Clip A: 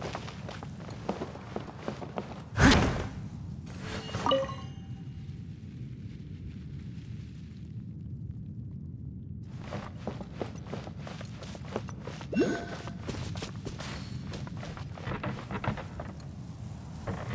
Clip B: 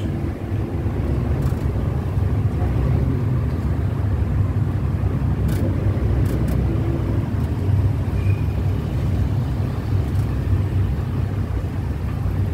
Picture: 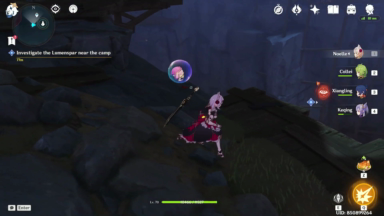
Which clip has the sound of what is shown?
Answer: A